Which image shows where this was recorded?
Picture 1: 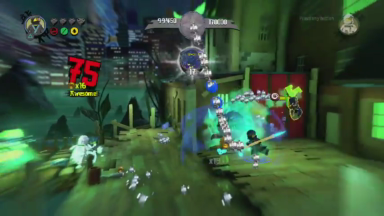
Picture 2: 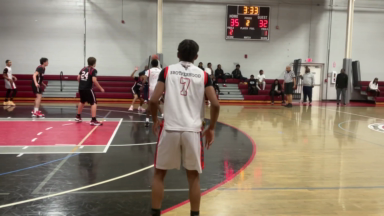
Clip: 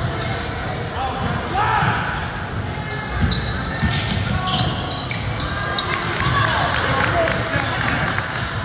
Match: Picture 2